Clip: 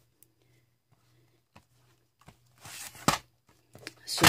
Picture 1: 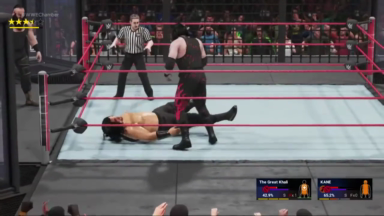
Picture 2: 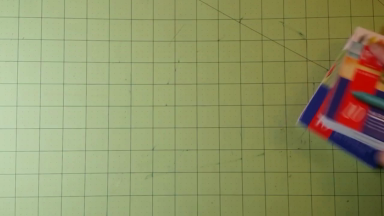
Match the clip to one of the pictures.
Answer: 2